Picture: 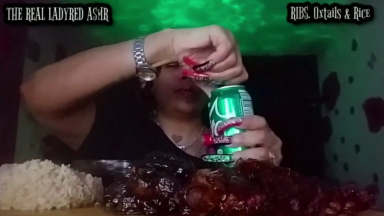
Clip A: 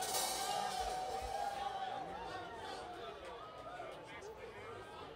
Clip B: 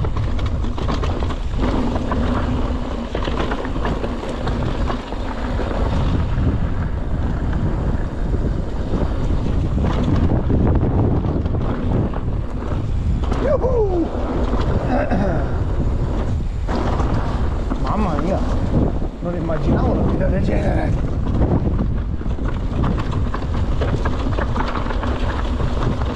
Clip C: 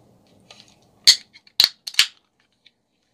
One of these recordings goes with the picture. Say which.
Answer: C